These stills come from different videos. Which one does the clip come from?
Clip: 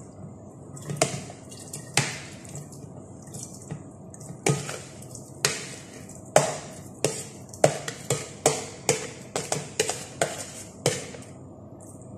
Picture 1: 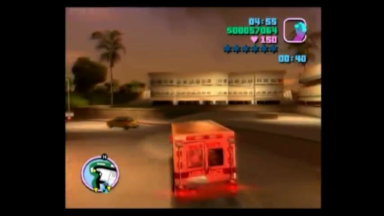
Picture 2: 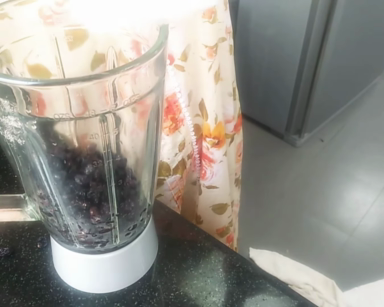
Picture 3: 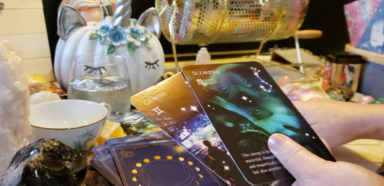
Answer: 2